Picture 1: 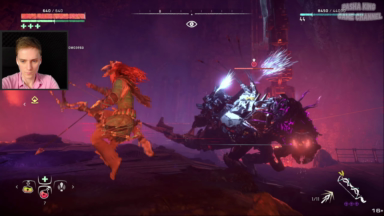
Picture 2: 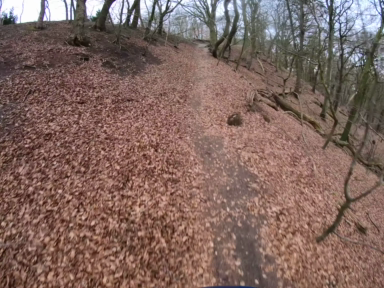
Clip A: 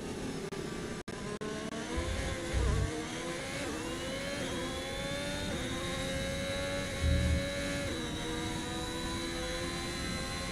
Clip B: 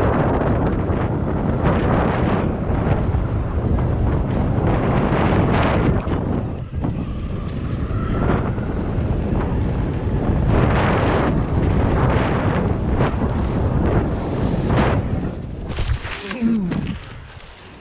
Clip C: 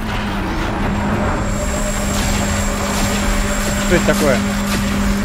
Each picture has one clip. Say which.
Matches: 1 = C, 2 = B